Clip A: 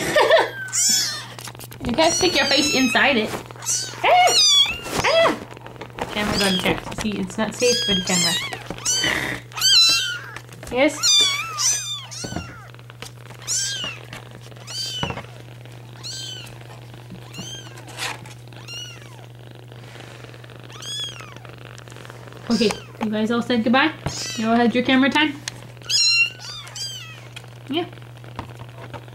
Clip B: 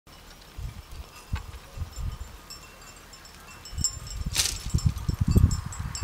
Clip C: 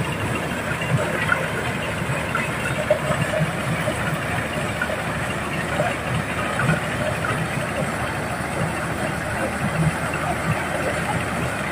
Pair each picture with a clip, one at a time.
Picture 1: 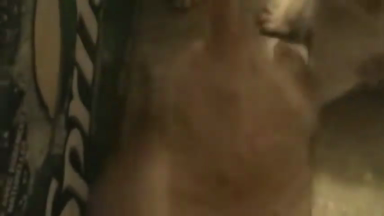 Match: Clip A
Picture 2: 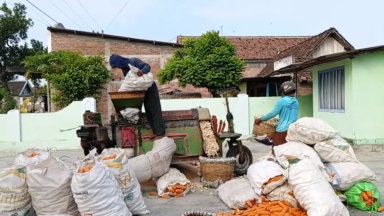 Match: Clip C